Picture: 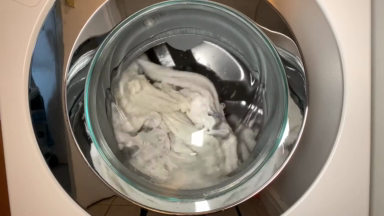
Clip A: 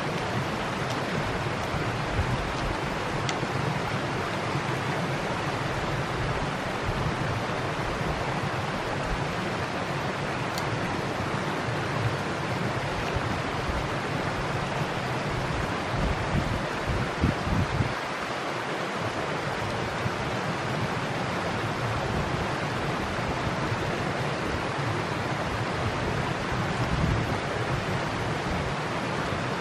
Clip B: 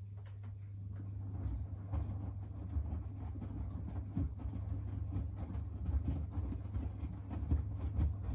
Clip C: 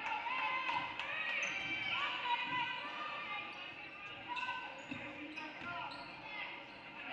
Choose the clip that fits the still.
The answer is B